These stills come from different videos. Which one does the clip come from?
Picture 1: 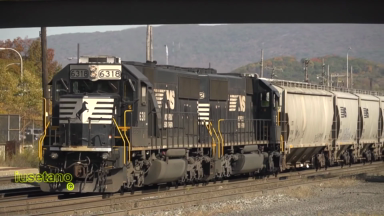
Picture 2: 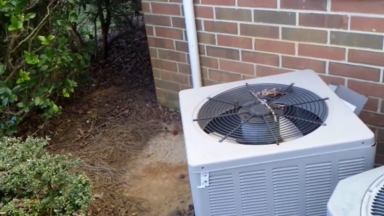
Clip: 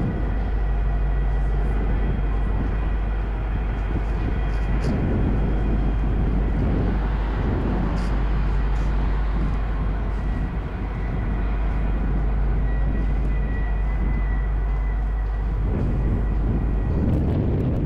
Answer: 1